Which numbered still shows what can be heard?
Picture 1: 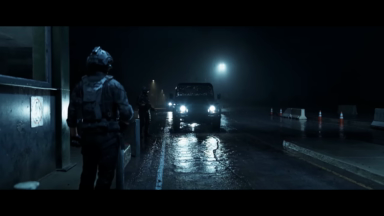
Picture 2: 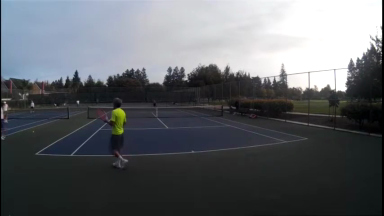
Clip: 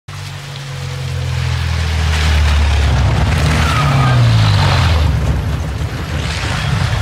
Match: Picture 1